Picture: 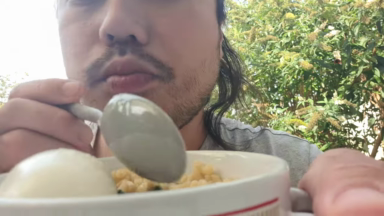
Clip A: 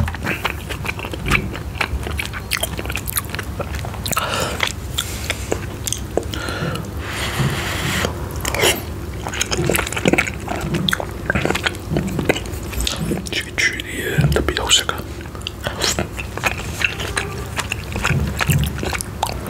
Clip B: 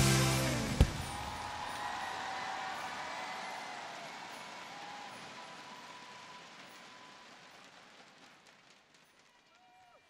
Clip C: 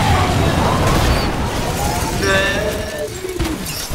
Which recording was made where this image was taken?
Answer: A